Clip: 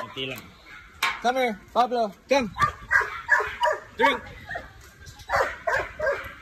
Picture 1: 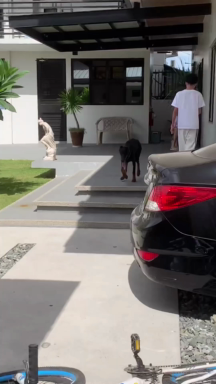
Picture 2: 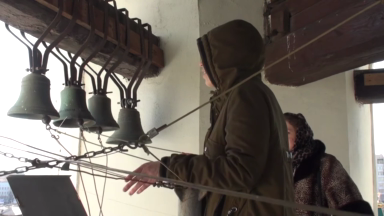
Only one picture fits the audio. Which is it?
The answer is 1